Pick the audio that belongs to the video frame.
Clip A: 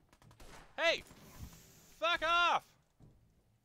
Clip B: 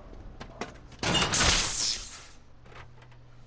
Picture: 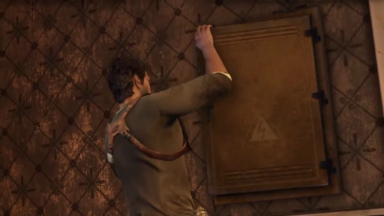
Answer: B